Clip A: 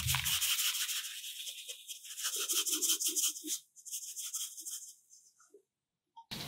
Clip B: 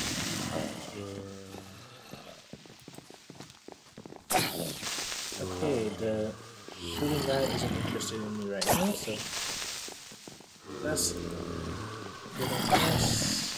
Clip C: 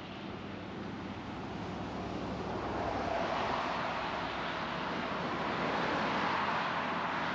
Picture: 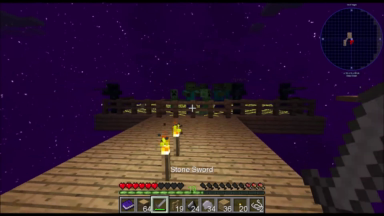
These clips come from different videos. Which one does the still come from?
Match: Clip B